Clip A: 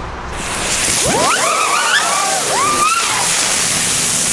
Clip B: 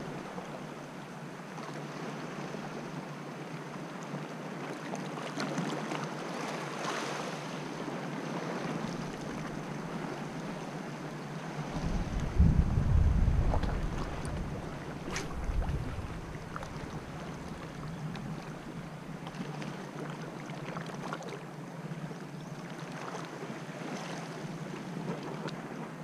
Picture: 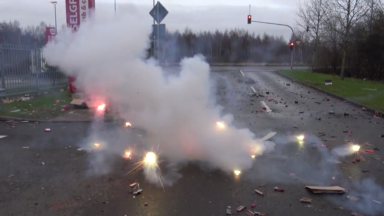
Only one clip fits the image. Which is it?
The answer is A